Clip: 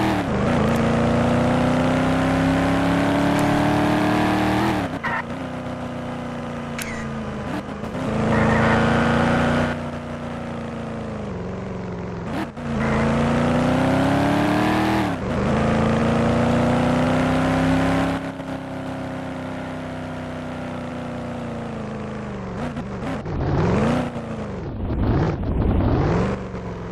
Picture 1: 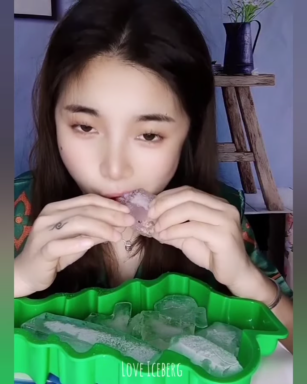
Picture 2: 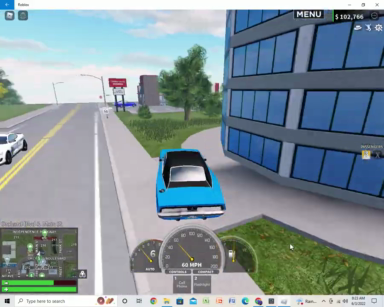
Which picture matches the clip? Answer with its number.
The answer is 2